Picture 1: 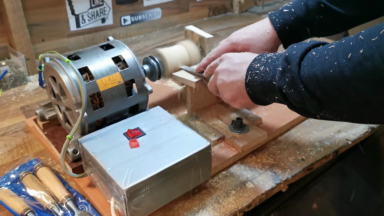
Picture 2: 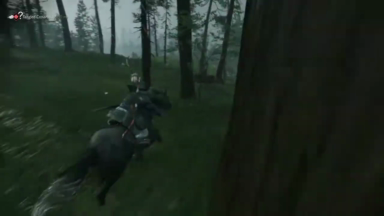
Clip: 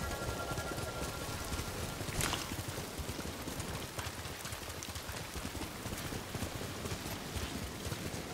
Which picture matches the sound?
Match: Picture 2